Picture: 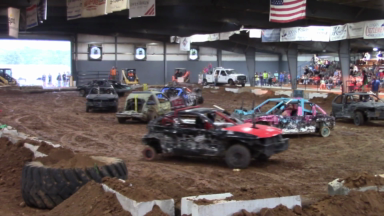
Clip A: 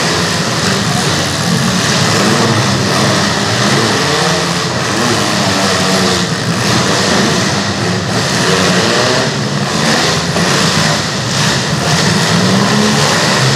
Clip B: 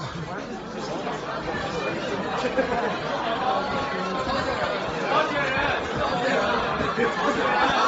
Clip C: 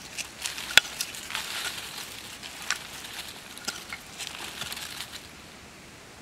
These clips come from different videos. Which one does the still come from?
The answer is A